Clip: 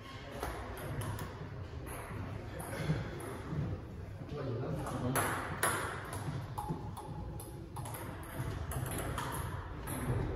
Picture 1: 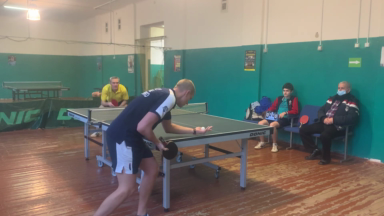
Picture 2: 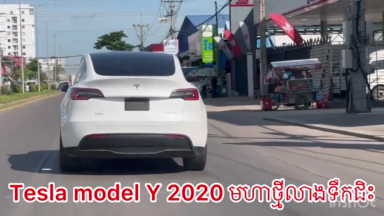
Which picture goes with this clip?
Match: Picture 1